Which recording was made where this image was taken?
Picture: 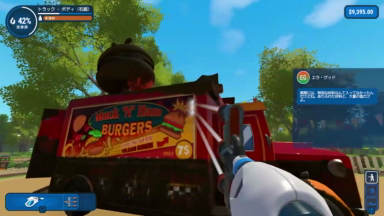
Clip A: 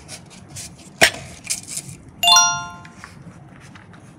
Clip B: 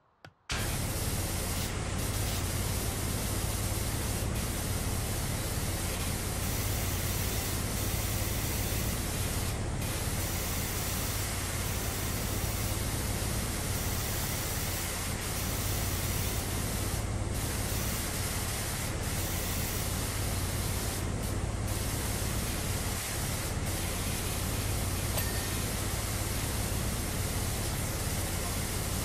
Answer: B